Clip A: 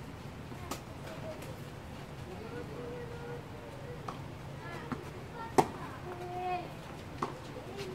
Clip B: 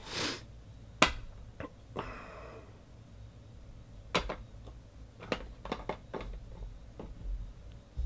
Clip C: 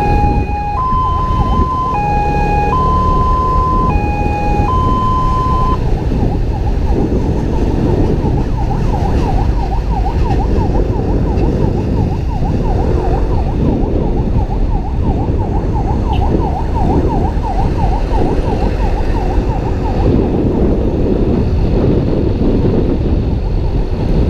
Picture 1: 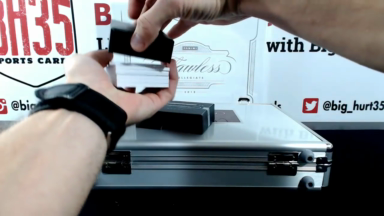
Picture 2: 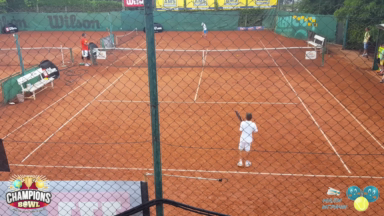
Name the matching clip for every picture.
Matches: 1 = B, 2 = A